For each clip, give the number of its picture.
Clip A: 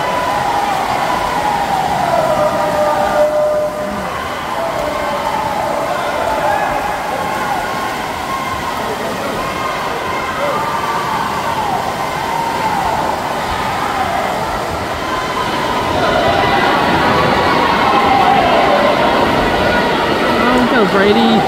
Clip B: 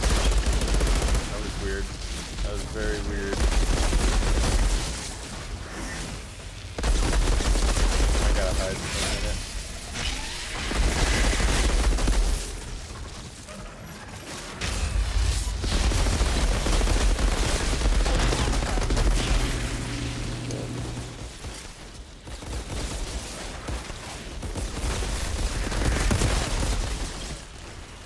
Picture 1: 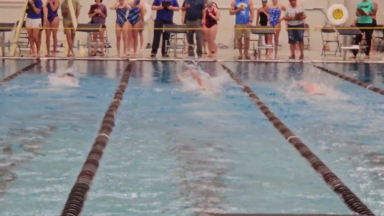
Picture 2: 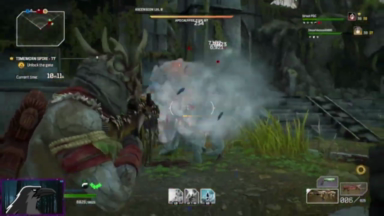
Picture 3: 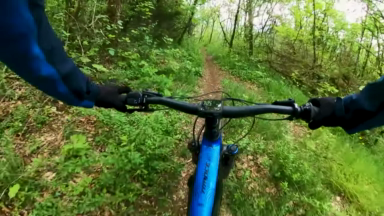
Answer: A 1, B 2